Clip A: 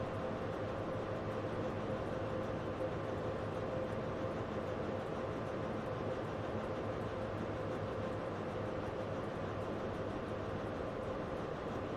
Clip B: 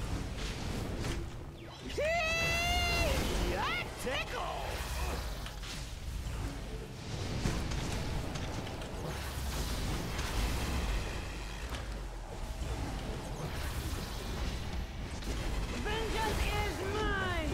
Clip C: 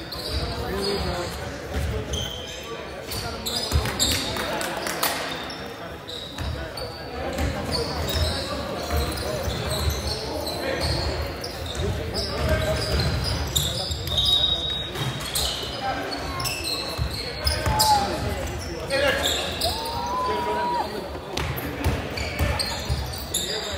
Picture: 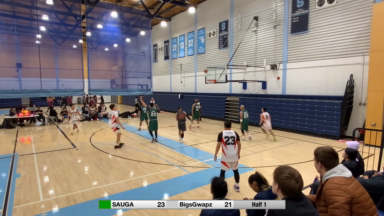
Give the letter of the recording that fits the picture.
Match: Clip C